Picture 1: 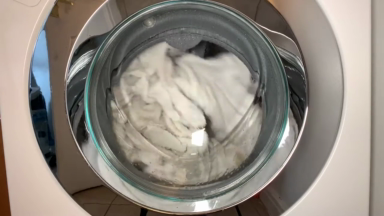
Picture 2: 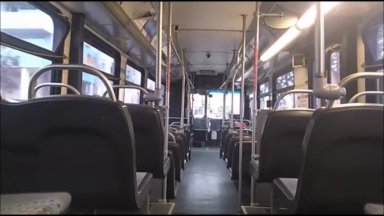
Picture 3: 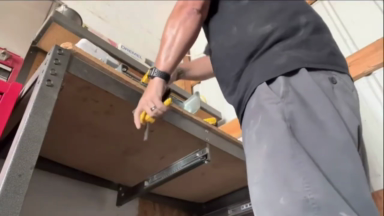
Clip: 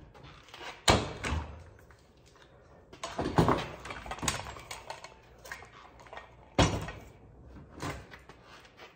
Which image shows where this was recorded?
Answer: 3